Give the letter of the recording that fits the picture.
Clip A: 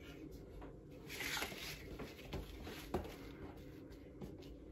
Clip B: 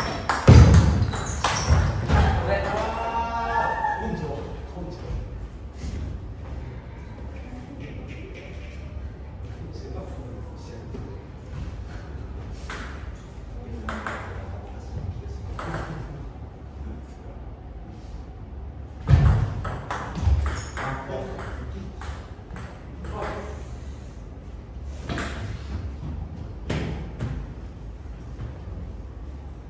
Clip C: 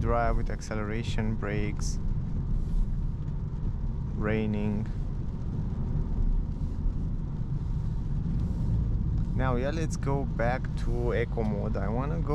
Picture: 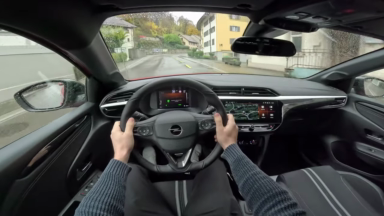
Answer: C